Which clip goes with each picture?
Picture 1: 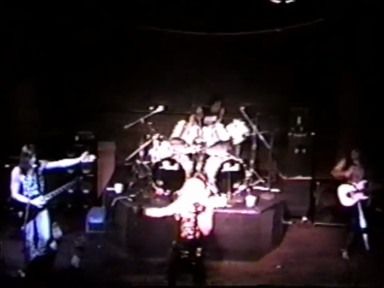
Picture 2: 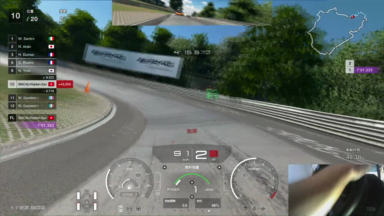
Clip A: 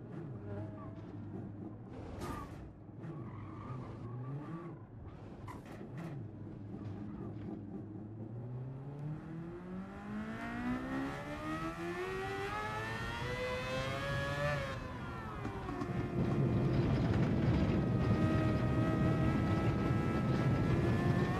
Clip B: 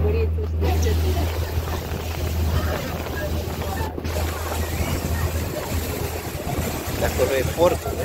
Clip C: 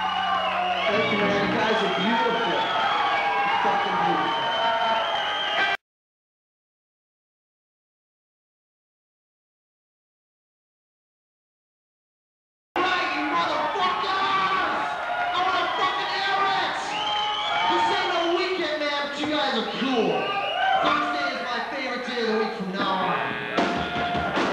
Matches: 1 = C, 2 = A